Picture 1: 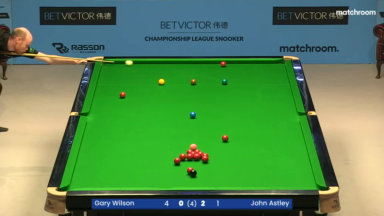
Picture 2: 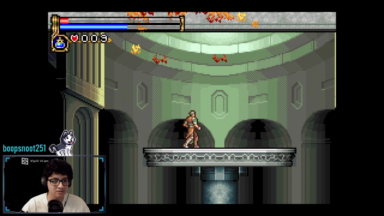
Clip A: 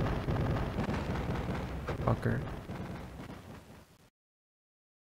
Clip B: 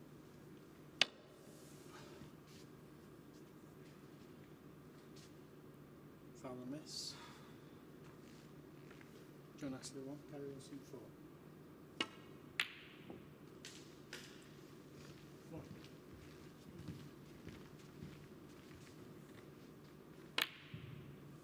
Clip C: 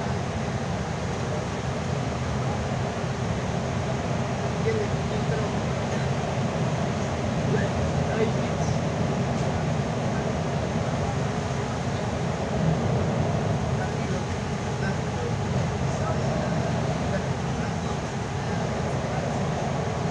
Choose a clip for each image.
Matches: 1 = B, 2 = A